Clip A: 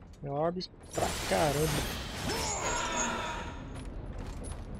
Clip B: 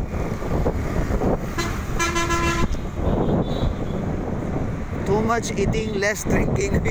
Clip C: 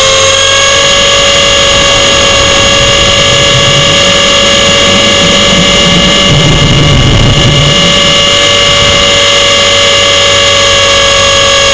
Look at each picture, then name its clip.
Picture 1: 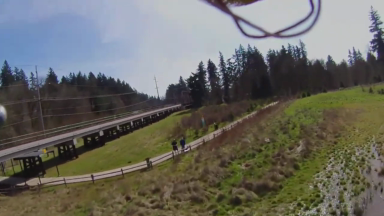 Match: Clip C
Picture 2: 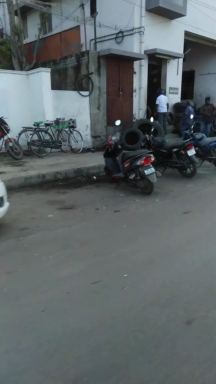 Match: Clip B